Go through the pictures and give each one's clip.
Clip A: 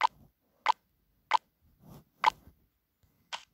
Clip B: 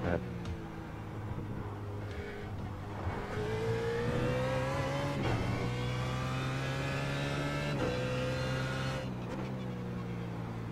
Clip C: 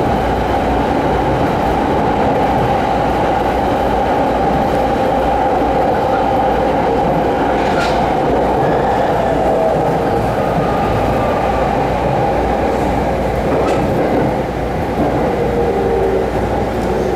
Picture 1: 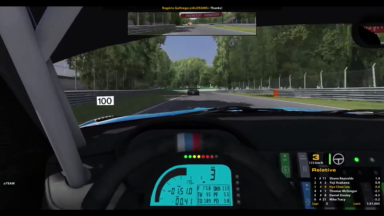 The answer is B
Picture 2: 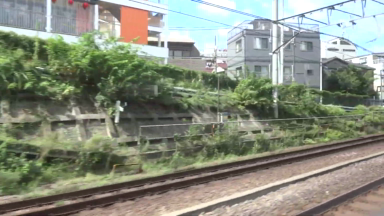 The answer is C